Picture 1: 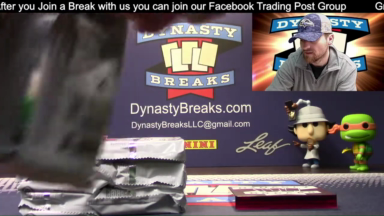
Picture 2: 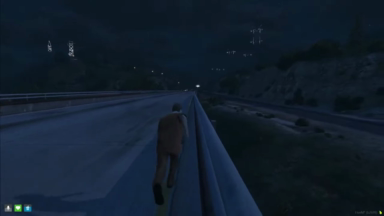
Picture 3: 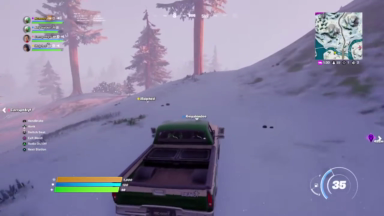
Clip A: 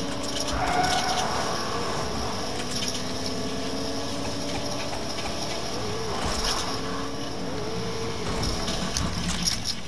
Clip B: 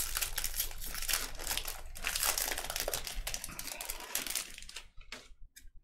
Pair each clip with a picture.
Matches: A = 3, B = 1